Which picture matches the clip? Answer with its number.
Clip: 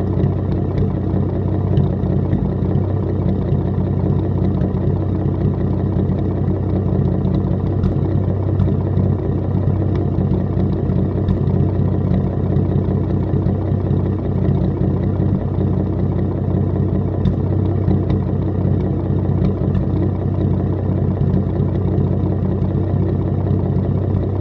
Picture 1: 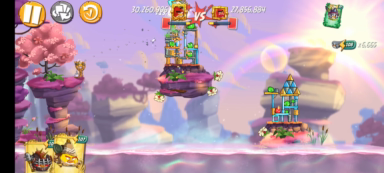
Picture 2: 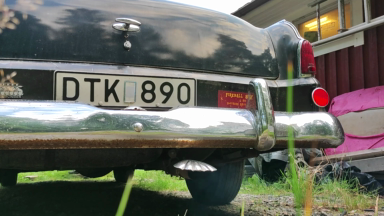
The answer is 2